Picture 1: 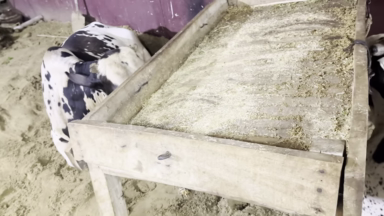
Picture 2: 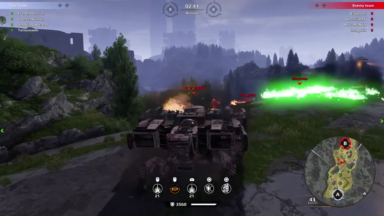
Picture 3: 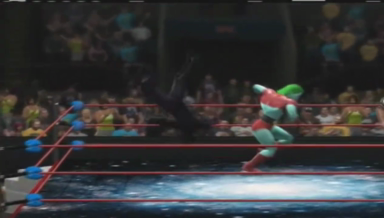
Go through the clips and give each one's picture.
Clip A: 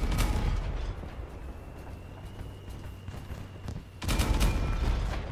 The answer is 2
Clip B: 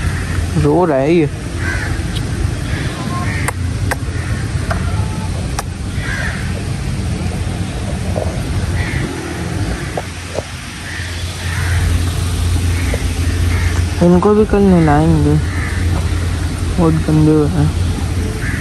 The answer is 1